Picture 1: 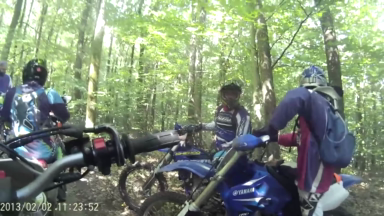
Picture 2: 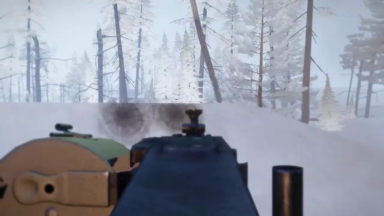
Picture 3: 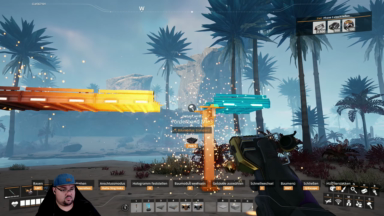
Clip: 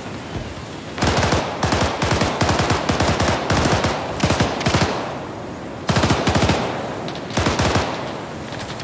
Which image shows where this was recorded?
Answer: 2